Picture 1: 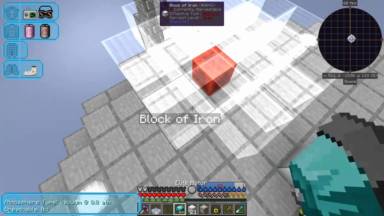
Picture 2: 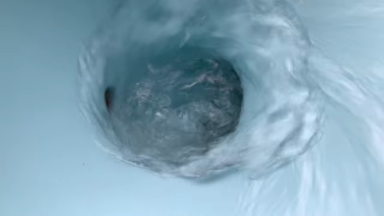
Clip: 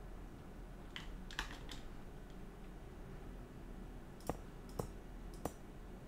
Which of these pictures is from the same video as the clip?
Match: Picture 1